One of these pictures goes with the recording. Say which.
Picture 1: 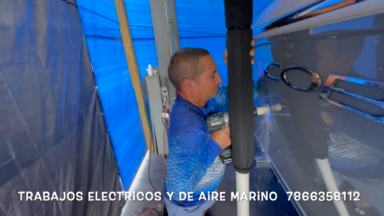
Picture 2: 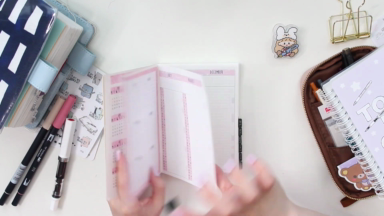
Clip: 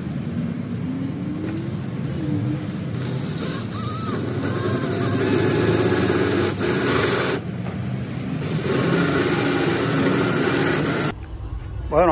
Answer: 1